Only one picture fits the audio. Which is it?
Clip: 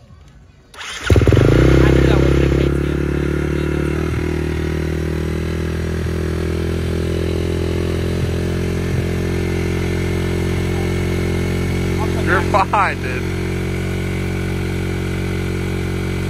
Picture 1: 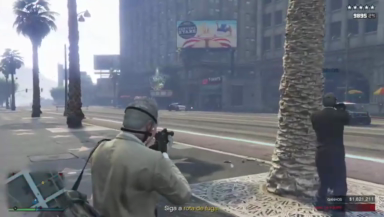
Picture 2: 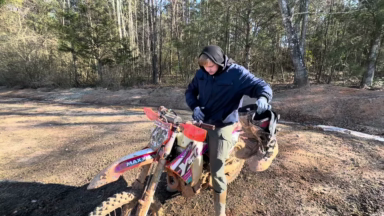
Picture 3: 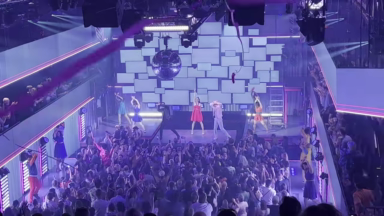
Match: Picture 2